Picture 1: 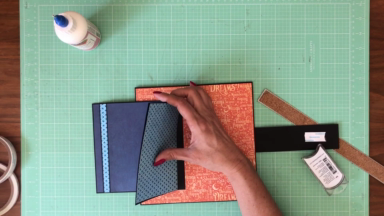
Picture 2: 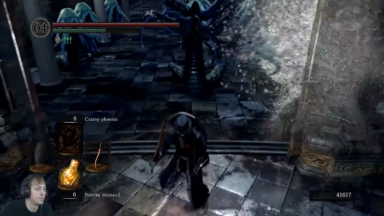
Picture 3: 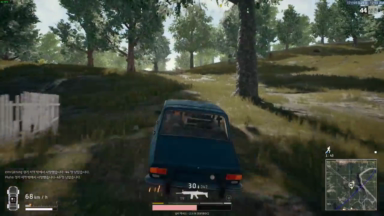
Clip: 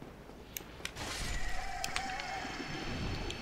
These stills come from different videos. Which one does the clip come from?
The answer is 2